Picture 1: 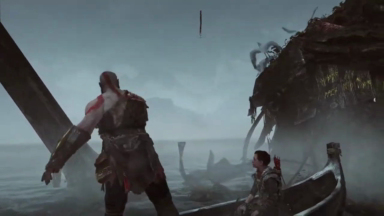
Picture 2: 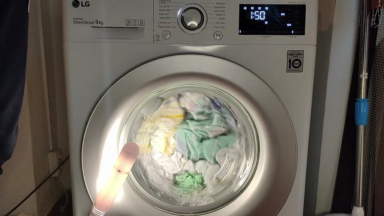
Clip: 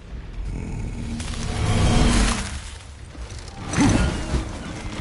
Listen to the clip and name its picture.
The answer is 1